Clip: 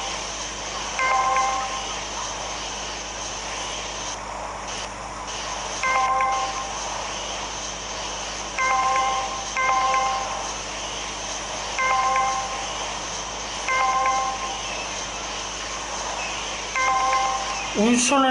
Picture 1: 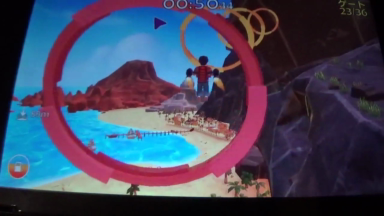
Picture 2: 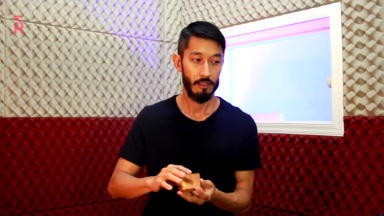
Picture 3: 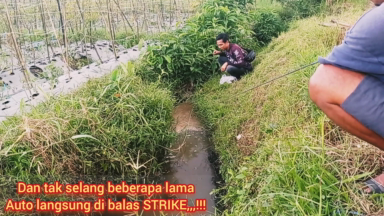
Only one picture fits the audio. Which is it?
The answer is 1